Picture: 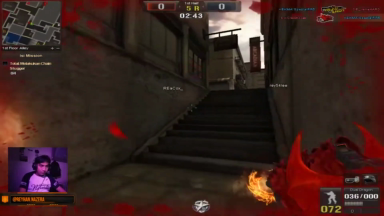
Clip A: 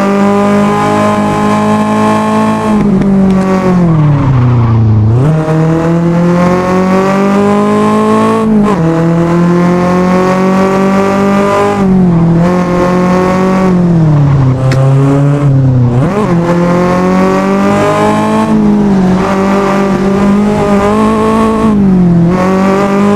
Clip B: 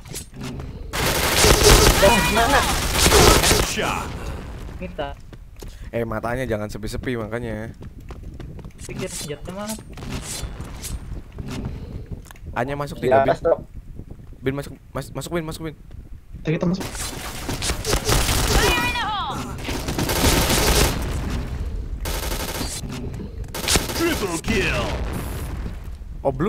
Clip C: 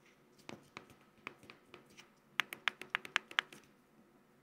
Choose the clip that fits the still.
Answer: B